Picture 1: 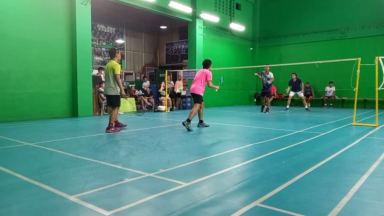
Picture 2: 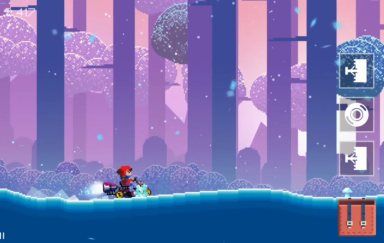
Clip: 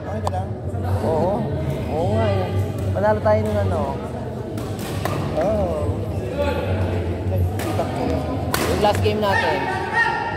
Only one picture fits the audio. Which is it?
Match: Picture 1